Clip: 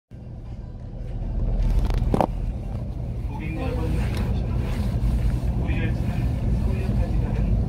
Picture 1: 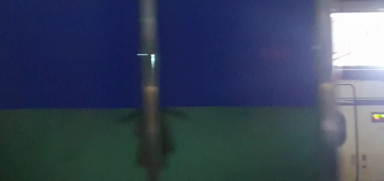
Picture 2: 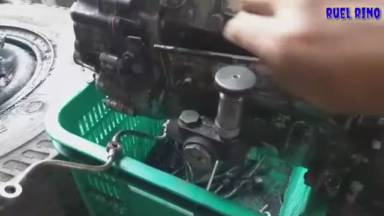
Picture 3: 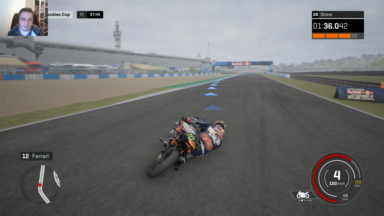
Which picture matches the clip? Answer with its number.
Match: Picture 1